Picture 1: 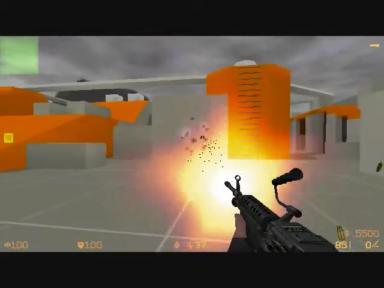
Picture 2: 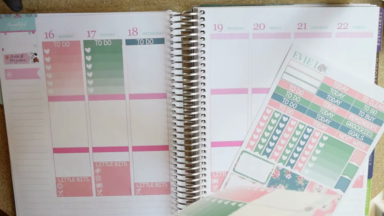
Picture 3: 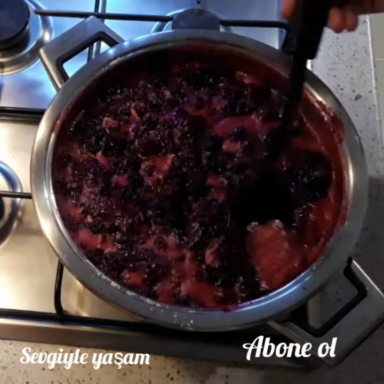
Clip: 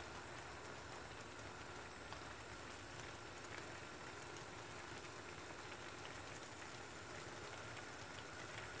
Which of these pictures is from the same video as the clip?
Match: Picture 3